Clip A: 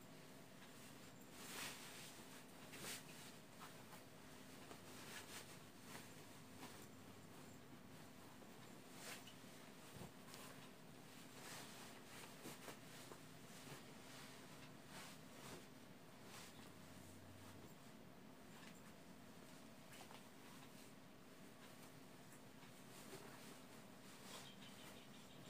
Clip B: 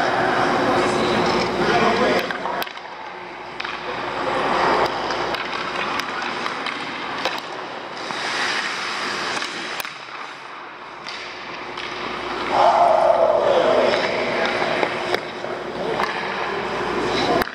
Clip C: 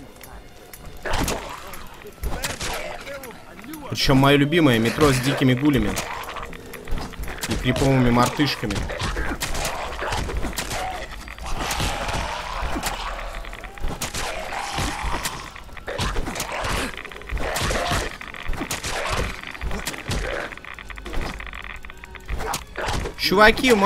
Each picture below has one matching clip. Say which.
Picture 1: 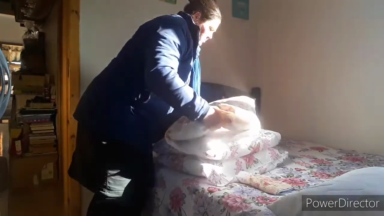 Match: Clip A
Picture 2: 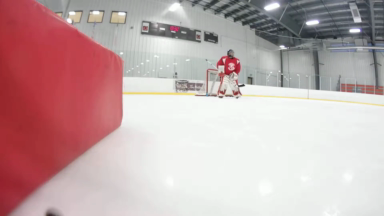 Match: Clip B